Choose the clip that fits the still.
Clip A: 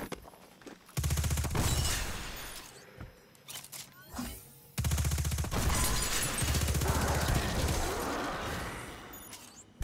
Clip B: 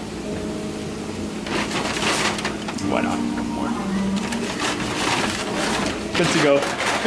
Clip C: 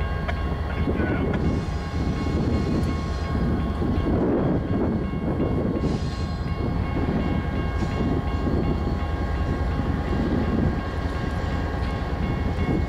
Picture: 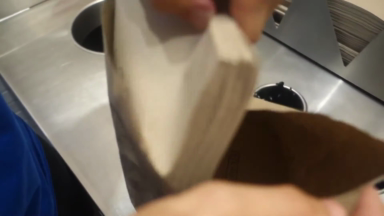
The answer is B